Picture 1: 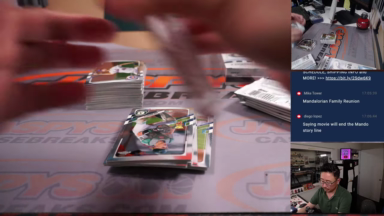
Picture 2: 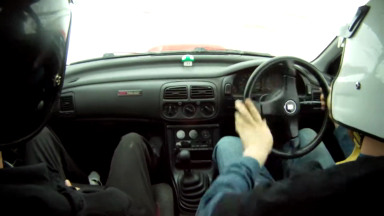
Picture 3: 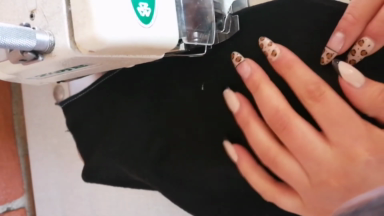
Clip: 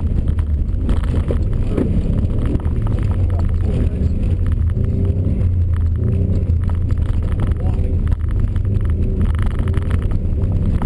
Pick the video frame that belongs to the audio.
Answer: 2